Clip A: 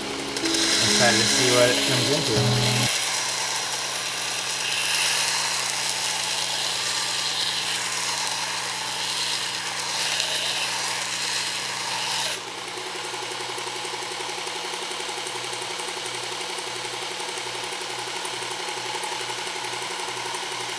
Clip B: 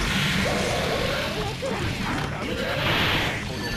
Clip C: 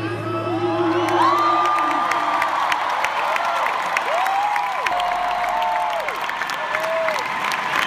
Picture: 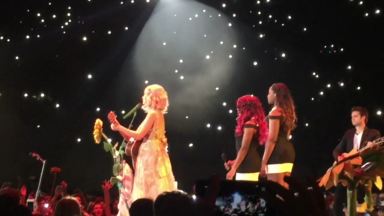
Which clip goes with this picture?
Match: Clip C